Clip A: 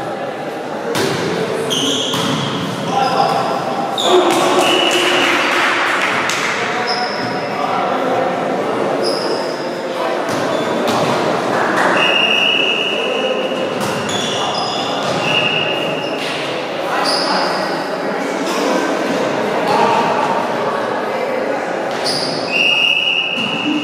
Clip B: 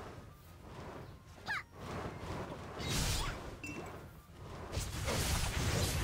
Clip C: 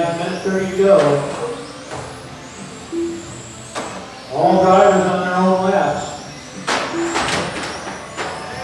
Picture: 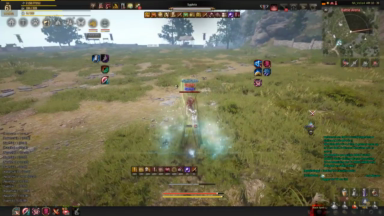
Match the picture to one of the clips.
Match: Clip B